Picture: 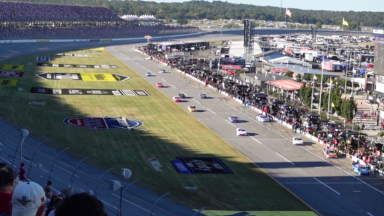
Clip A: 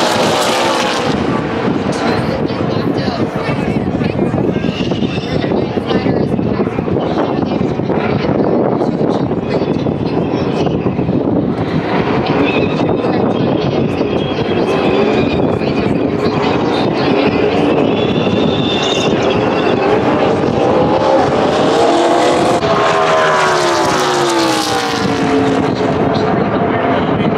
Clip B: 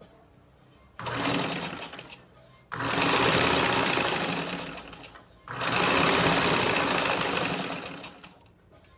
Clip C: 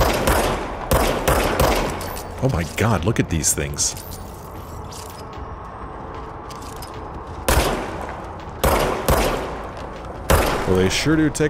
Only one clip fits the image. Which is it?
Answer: A